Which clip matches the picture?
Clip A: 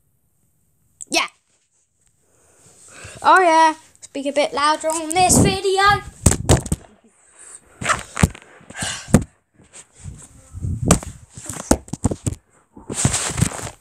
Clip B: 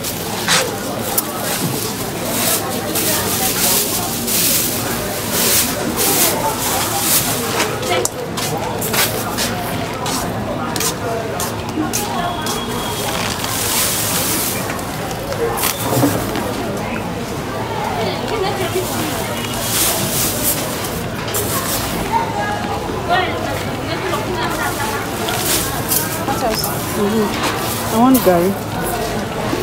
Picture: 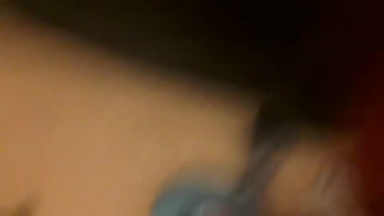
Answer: A